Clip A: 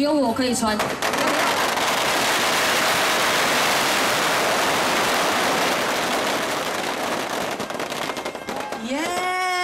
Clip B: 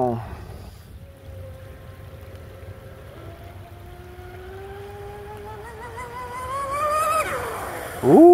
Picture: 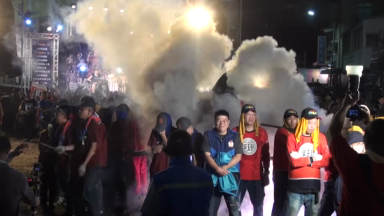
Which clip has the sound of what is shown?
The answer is A